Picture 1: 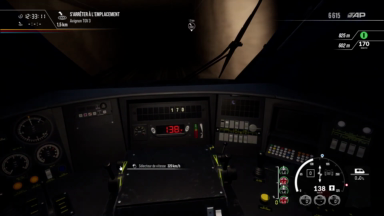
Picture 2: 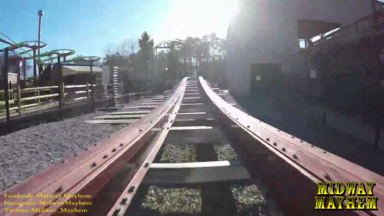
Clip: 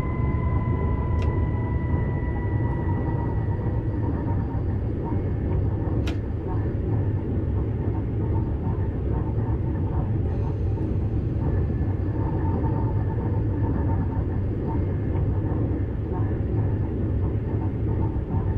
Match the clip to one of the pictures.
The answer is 1